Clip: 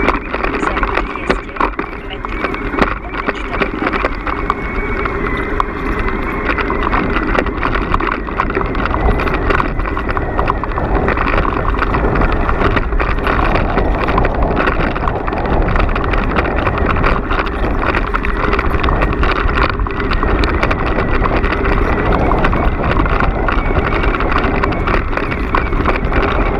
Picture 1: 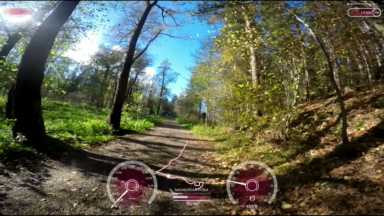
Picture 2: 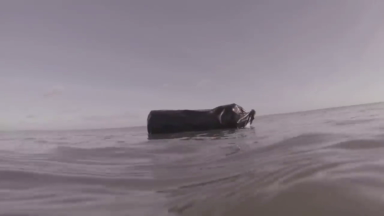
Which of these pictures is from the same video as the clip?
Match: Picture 1